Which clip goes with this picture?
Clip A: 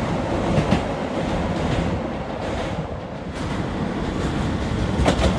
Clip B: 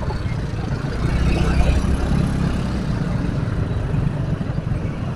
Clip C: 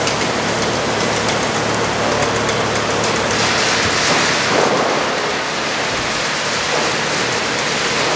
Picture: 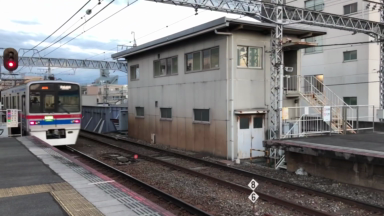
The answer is A